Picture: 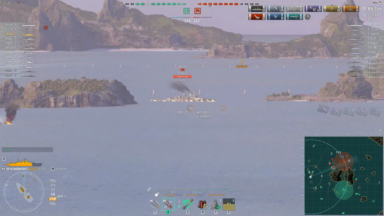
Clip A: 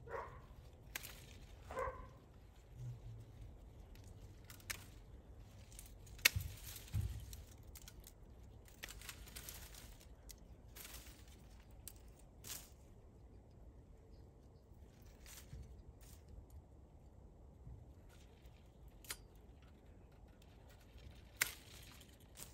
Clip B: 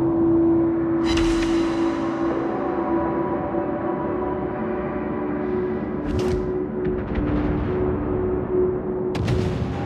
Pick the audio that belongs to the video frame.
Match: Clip B